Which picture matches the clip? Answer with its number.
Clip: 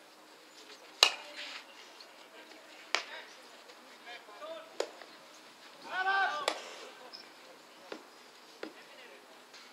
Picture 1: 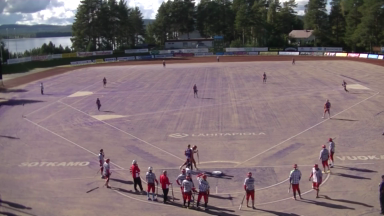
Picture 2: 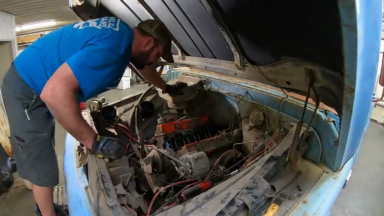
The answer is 1